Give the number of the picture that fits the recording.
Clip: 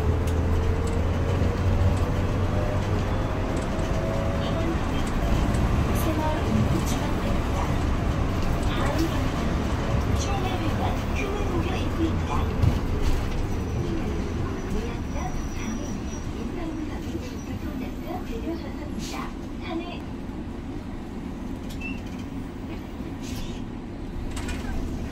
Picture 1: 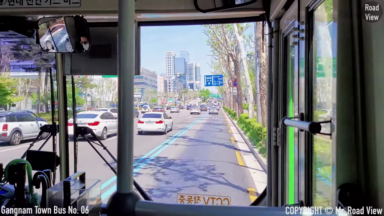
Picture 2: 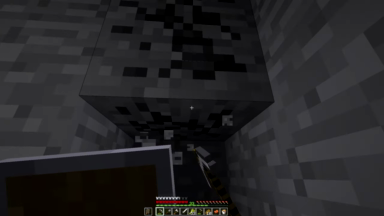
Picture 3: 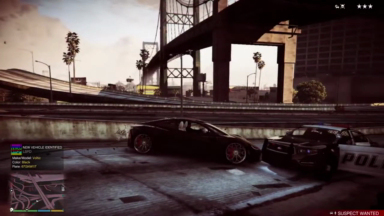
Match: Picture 1